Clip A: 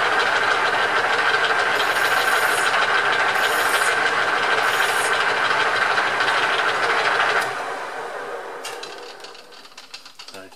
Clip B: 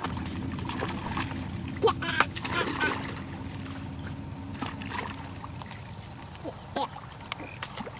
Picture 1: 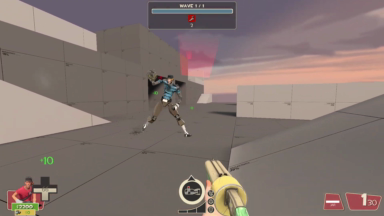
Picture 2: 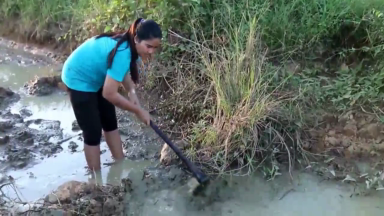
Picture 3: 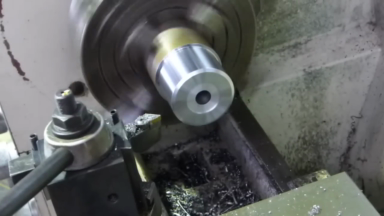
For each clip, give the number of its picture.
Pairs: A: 3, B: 2